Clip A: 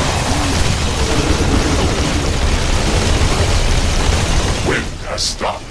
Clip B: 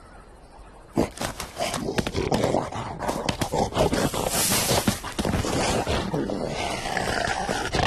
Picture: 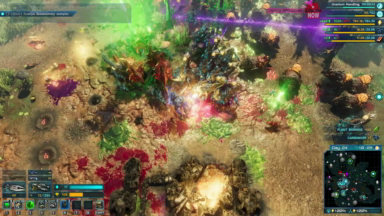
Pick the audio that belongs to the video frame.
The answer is A